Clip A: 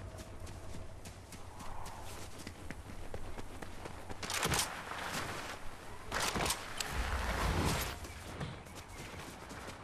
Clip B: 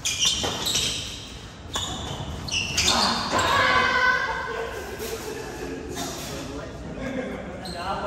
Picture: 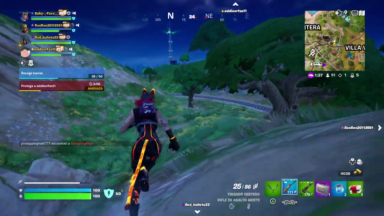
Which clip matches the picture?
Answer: A